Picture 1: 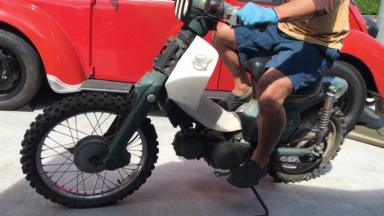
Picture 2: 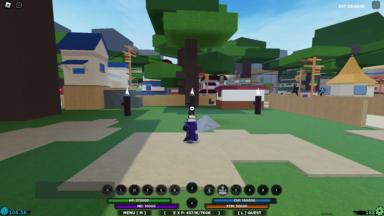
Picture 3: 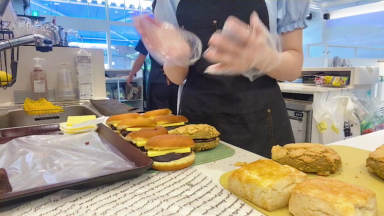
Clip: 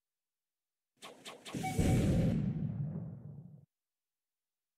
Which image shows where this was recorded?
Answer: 2